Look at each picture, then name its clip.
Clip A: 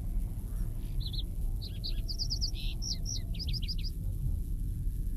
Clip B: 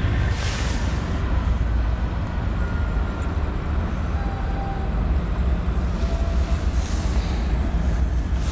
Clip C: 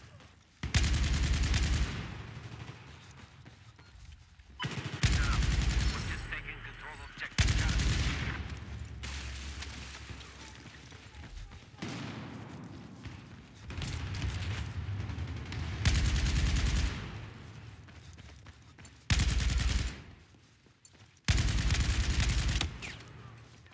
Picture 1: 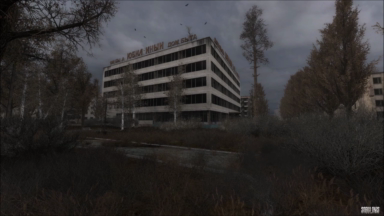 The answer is A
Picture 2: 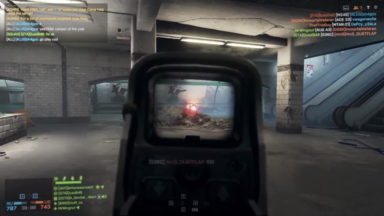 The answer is C